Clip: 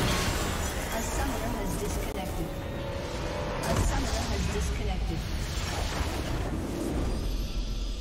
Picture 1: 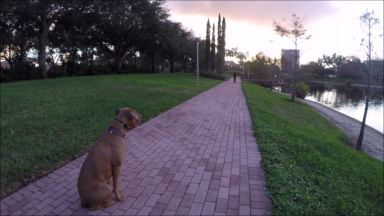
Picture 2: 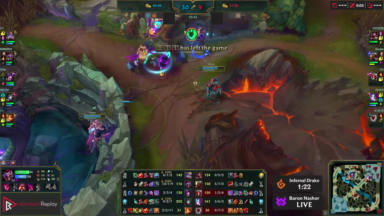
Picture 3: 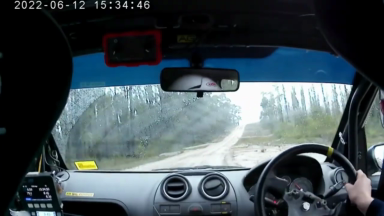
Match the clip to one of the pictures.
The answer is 2